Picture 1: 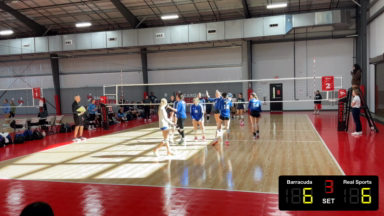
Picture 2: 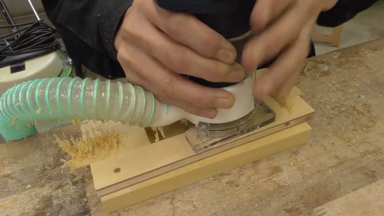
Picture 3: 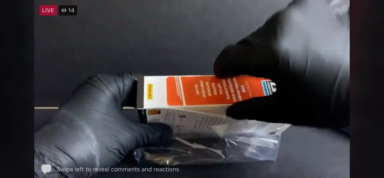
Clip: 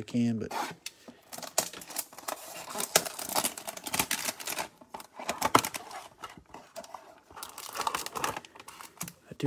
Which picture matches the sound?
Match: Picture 3